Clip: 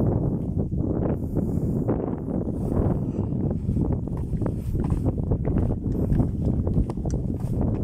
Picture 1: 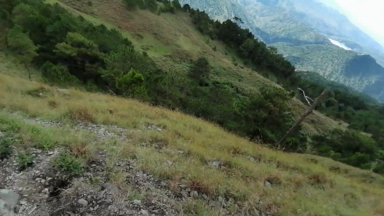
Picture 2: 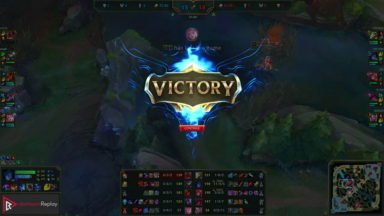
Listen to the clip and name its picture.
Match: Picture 1